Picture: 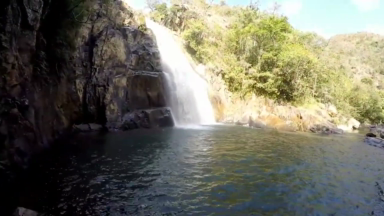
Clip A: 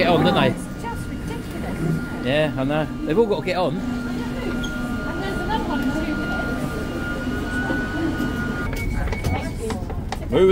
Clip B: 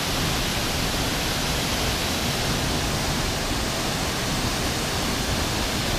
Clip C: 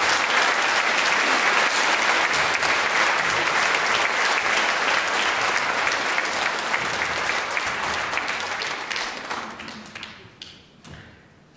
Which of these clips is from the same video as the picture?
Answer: B